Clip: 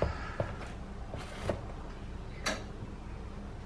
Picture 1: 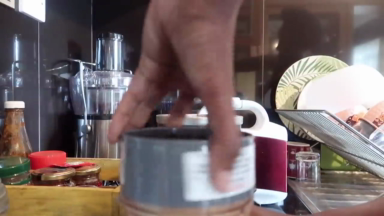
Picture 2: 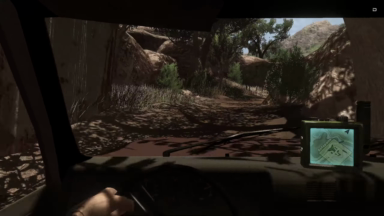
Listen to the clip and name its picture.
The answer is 1